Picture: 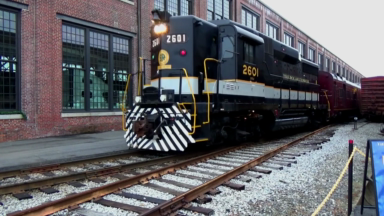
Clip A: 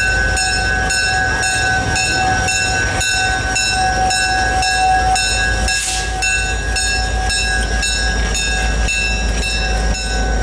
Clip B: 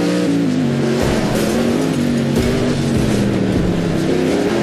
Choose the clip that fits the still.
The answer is A